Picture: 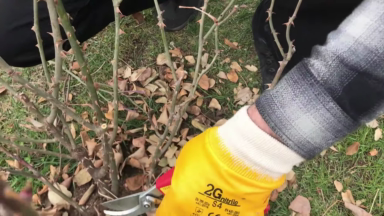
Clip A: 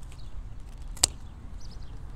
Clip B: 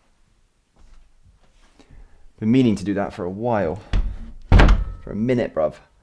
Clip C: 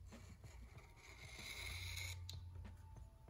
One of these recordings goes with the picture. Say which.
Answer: A